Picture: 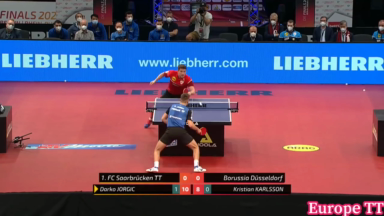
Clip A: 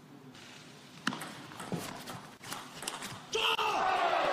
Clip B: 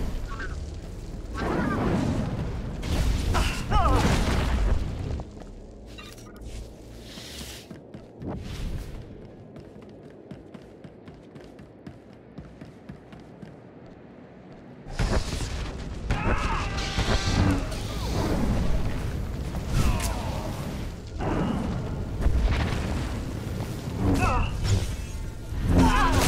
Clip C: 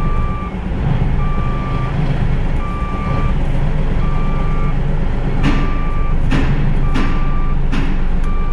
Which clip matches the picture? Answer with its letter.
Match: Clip A